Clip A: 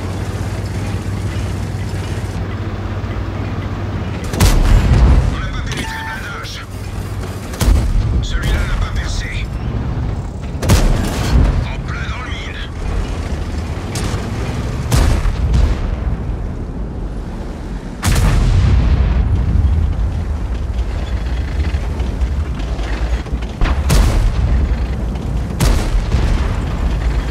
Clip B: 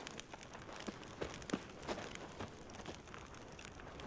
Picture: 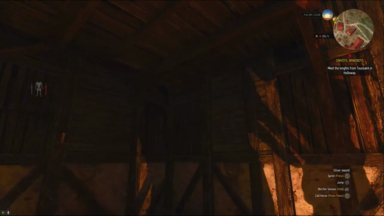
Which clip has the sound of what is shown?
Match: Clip B